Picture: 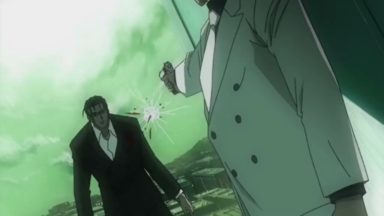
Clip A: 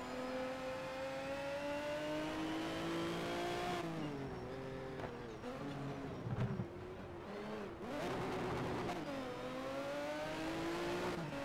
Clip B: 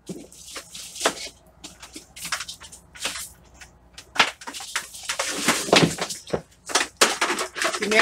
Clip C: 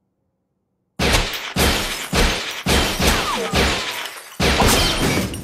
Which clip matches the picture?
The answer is C